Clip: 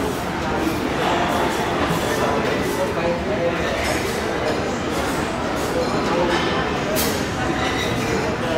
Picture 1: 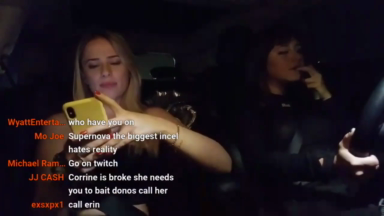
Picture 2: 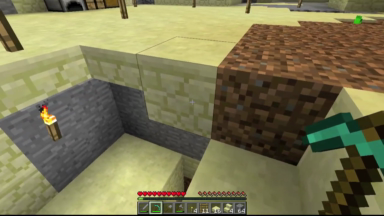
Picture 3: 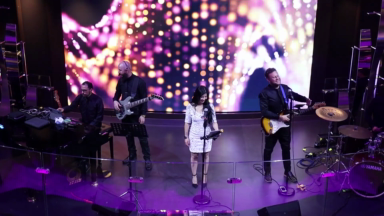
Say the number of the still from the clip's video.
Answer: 3